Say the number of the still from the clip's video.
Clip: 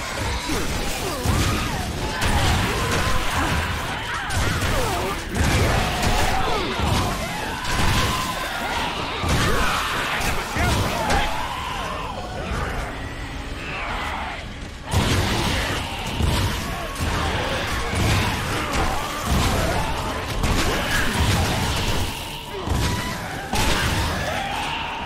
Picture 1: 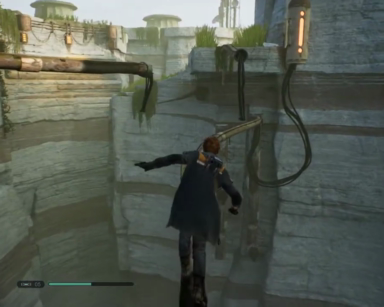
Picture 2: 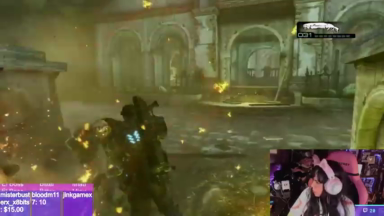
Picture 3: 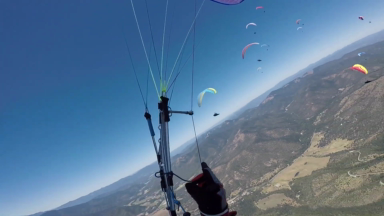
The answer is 2